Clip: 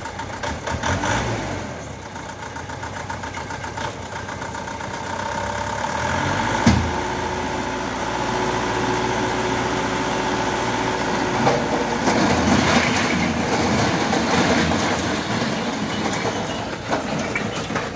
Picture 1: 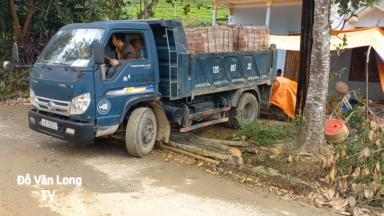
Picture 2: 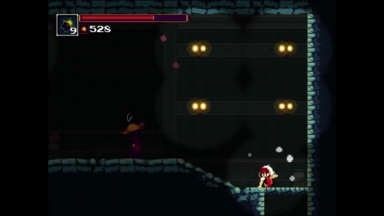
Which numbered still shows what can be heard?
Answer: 1